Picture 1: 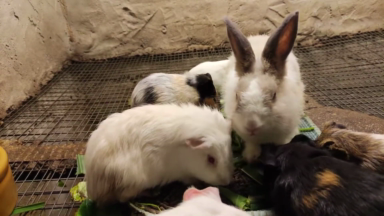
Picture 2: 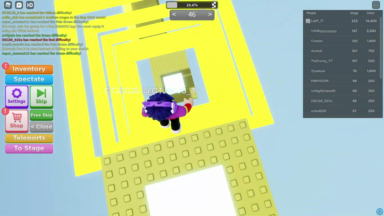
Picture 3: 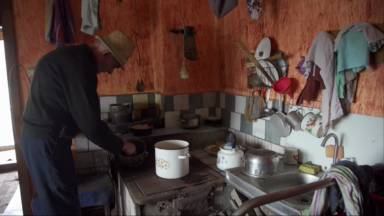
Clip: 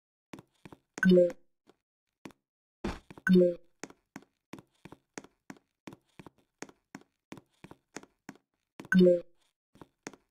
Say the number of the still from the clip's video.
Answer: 2